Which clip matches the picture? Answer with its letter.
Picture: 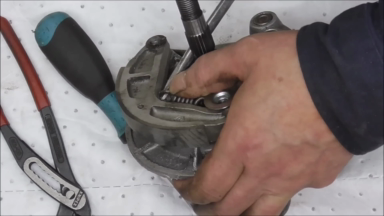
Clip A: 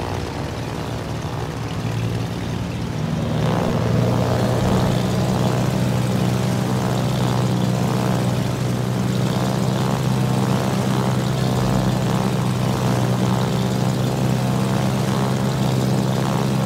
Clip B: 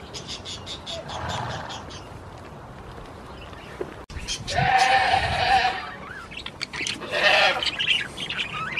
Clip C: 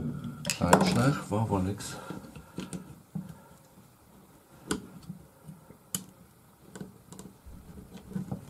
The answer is C